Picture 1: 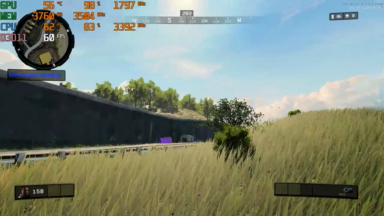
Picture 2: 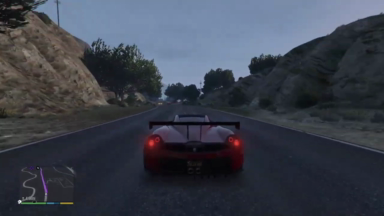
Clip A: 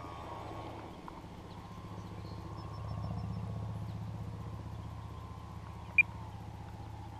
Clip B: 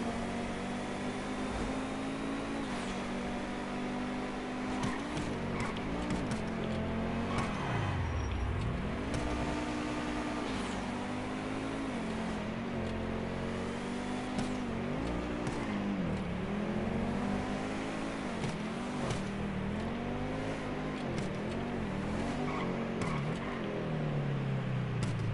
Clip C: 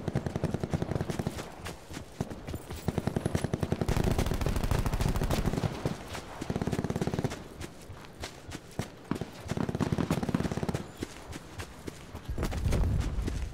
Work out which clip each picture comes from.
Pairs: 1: C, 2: B